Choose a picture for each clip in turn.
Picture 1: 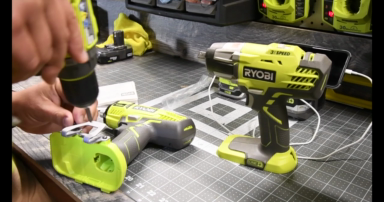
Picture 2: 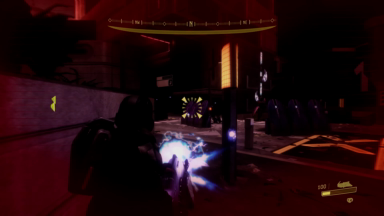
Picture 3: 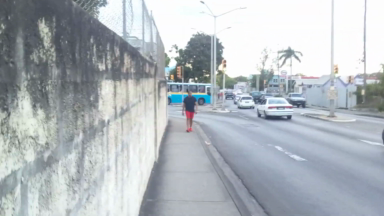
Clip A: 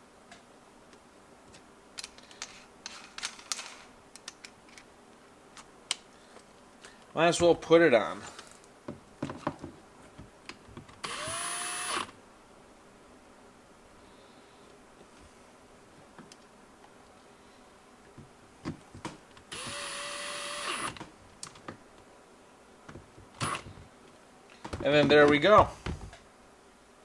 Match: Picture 1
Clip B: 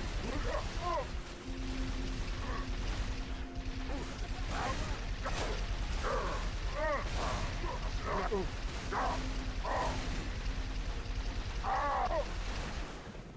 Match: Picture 2